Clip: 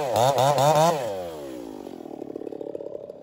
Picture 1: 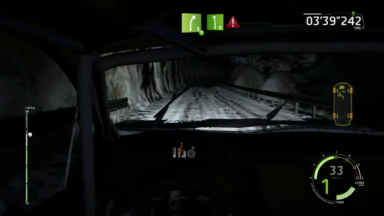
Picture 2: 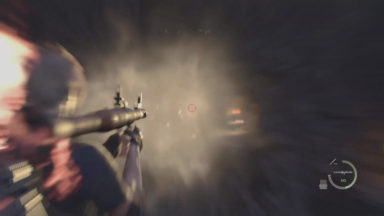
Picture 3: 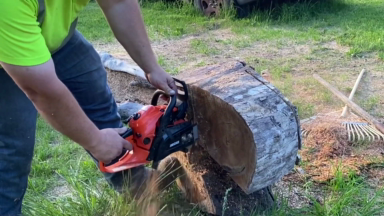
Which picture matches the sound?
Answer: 3